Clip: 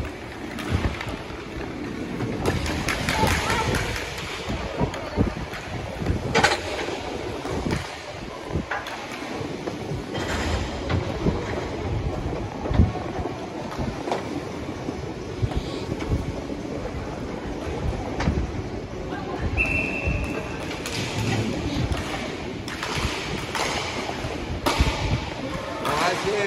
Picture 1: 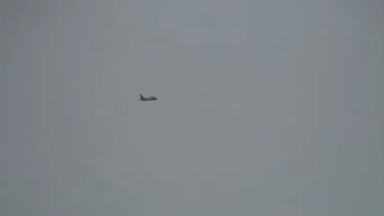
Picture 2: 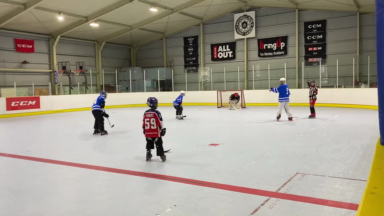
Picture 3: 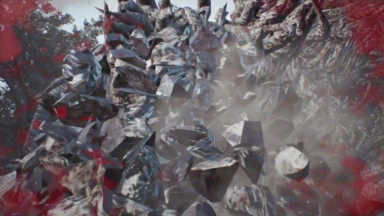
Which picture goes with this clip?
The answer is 2